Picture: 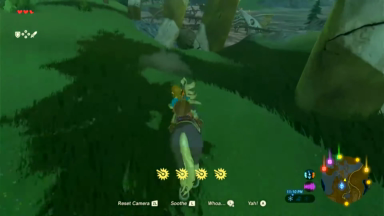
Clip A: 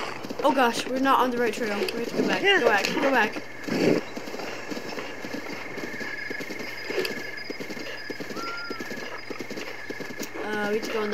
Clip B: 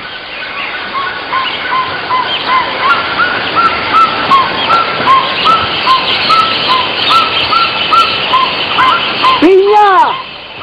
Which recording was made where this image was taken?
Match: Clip A